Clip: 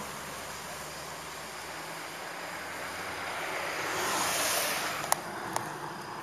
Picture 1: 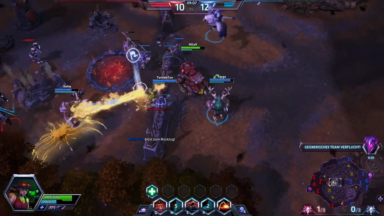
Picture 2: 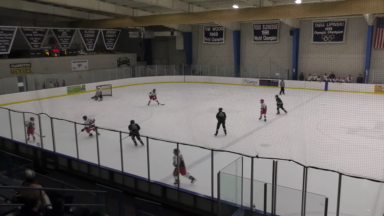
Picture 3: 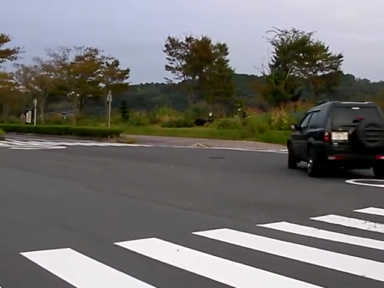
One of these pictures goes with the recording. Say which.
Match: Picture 3